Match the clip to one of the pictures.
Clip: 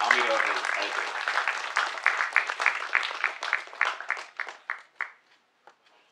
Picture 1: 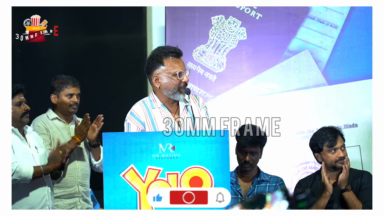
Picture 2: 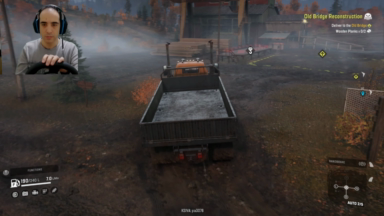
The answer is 1